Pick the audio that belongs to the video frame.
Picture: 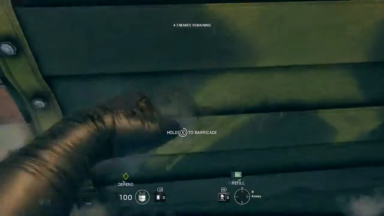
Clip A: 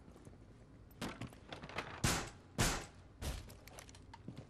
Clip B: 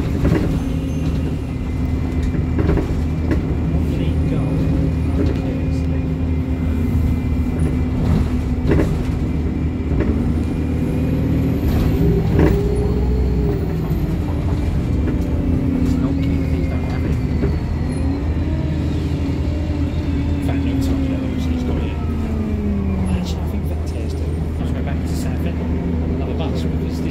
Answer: A